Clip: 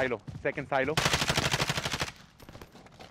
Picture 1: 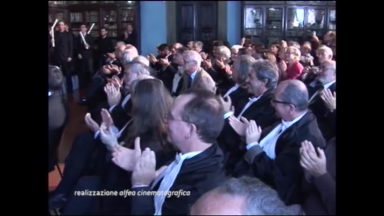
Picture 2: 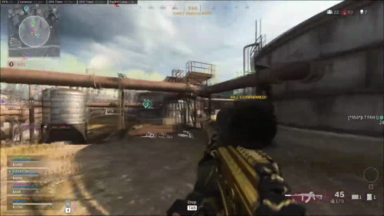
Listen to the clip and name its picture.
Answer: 2